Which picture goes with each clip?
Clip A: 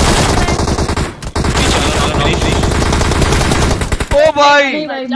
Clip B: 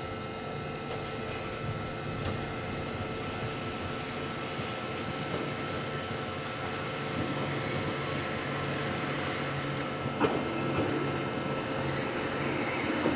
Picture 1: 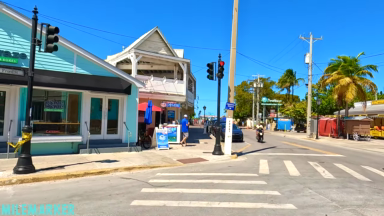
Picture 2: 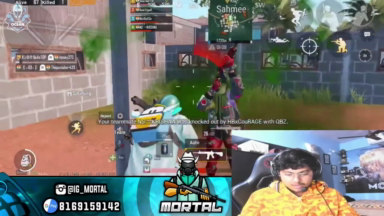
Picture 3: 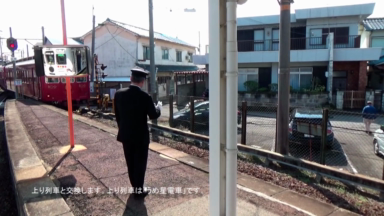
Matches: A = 2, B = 3